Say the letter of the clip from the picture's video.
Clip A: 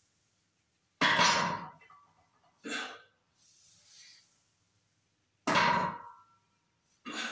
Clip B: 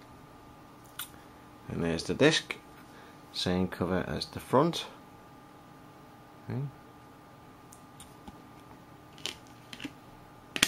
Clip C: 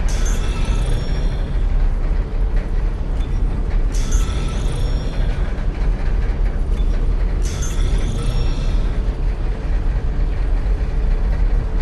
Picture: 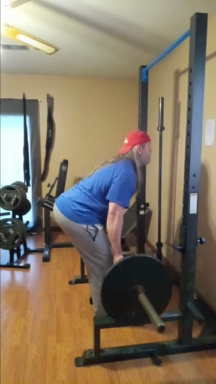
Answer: A